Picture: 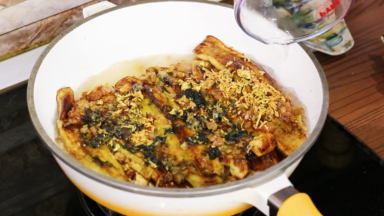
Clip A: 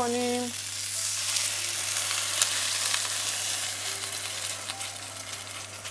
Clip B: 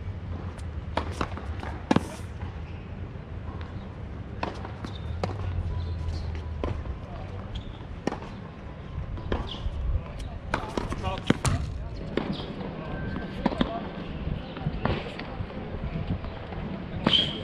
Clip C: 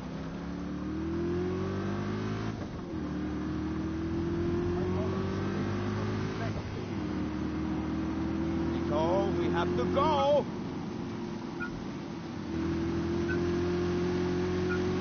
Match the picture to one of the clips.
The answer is A